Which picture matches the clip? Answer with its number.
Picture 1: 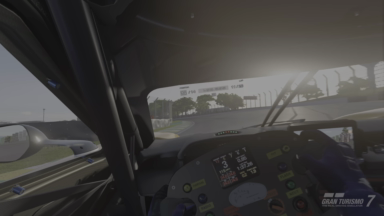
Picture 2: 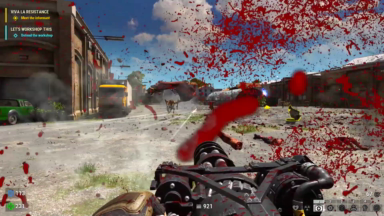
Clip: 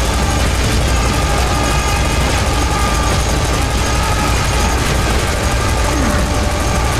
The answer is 2